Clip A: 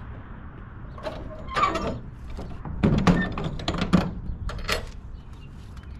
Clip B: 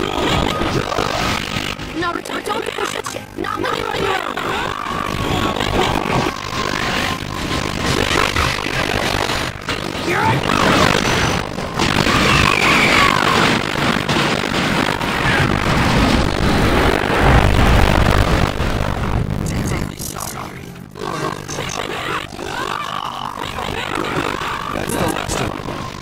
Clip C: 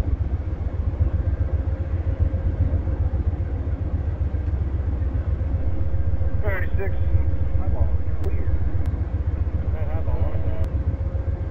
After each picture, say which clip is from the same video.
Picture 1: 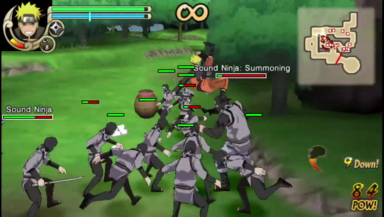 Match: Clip B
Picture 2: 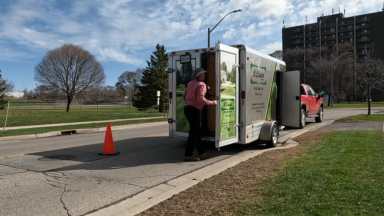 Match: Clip A